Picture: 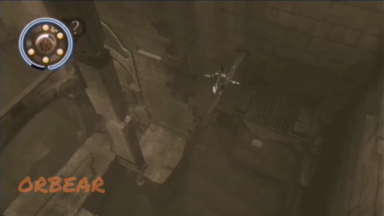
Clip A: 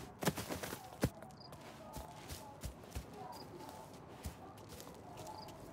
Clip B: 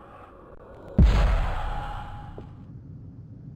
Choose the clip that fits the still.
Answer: B